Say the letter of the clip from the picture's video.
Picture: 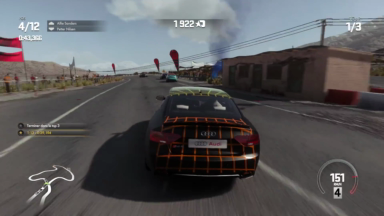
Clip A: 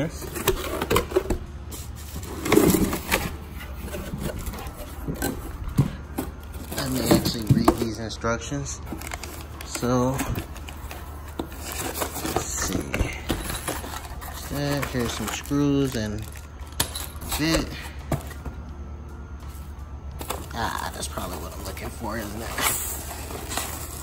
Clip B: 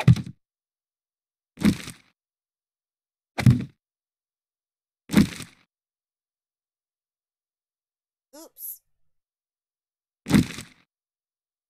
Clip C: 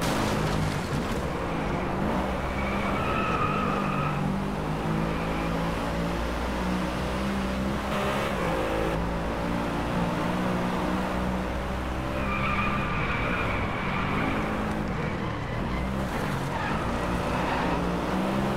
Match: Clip C